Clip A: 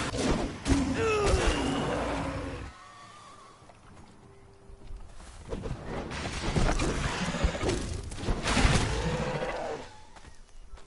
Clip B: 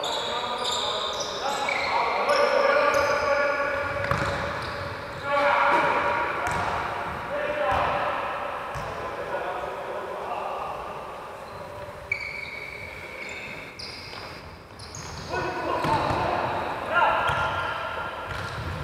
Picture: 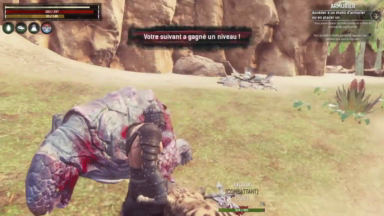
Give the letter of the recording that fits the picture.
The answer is A